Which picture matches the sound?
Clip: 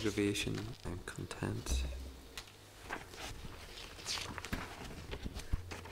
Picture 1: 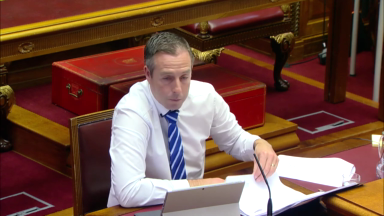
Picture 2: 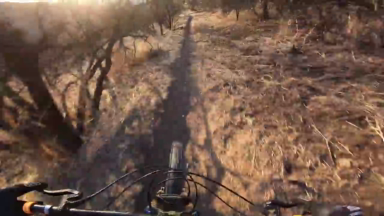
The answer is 1